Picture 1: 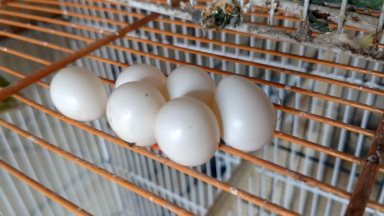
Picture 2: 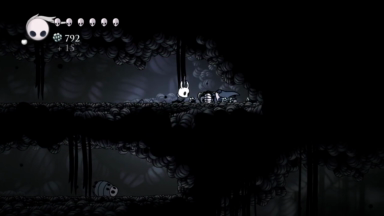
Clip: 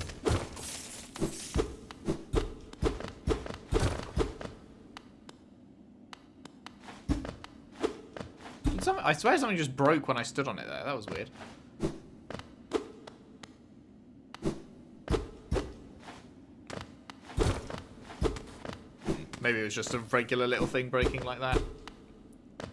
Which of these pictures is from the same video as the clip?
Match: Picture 2